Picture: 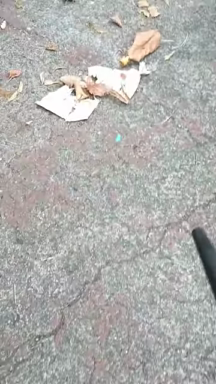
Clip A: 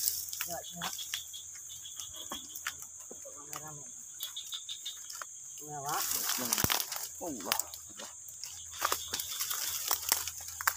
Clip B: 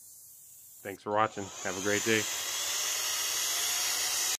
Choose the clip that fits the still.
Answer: B